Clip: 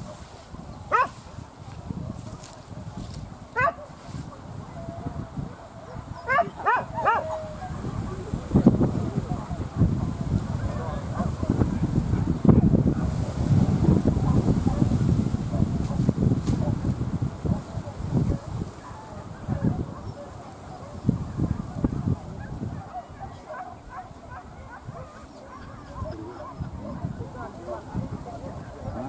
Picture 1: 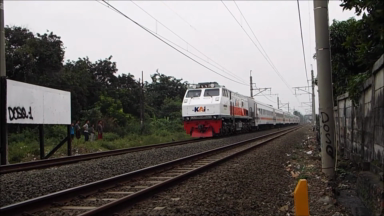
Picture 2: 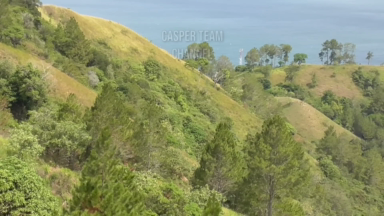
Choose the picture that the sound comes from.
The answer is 2